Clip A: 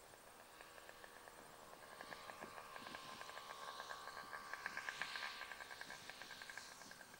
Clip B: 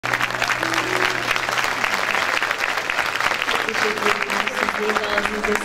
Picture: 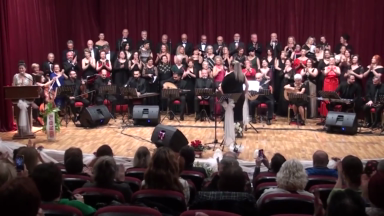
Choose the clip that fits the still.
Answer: B